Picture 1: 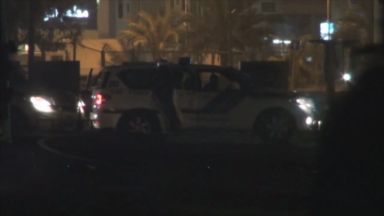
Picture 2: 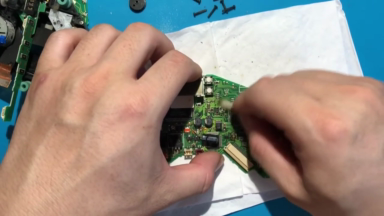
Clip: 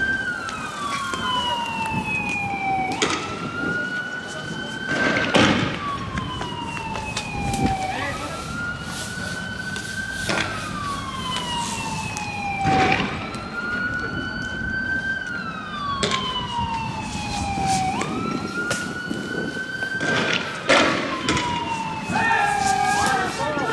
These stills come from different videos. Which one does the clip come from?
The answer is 1